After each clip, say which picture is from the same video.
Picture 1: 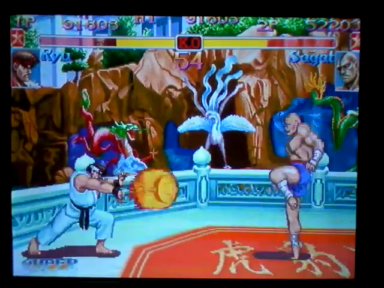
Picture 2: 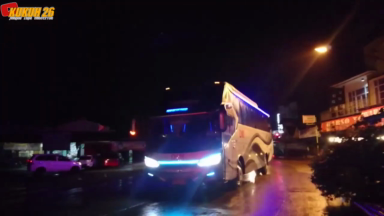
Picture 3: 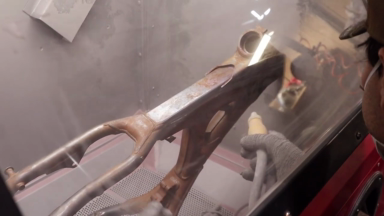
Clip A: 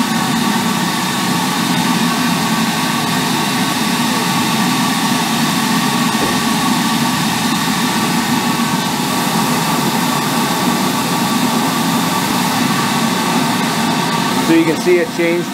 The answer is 3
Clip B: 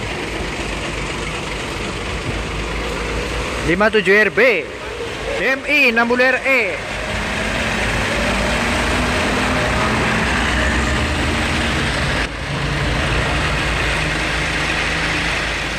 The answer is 2